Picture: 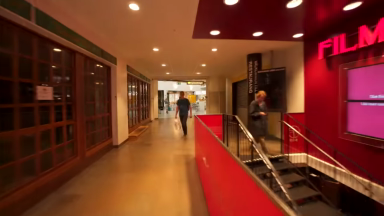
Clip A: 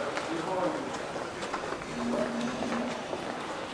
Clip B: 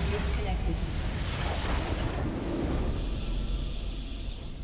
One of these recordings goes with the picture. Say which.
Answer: A